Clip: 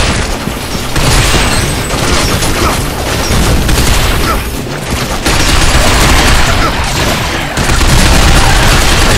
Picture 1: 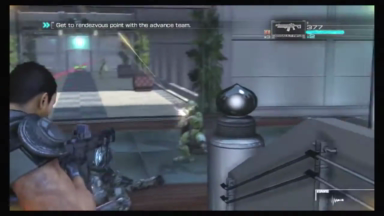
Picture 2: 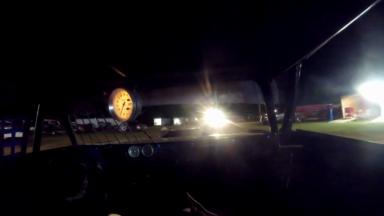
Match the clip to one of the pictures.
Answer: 1